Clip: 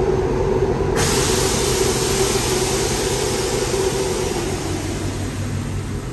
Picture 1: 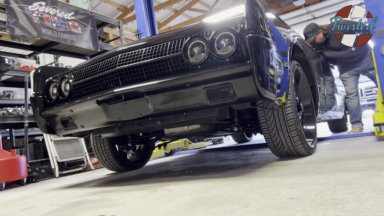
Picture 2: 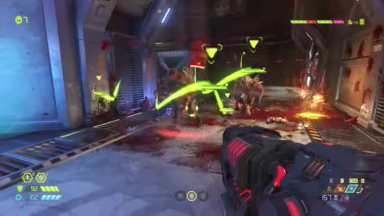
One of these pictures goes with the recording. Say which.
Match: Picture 1